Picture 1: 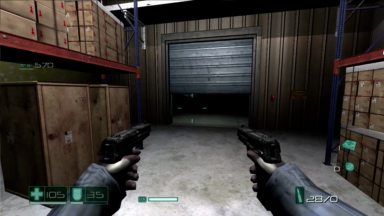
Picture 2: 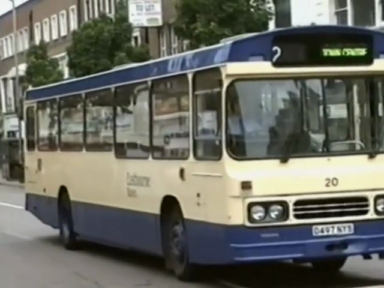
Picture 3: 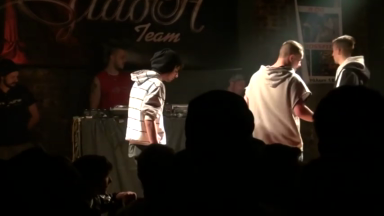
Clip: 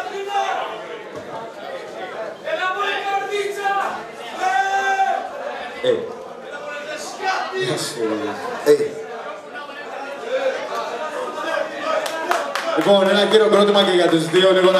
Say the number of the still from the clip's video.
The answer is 3